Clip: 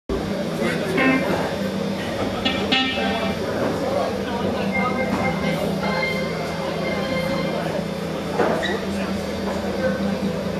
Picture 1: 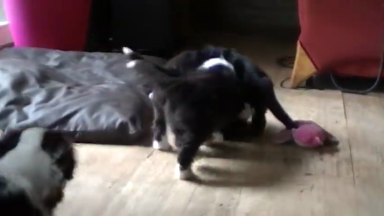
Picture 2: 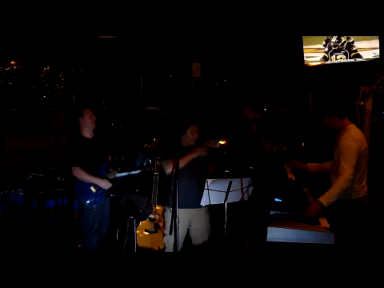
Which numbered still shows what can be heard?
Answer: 2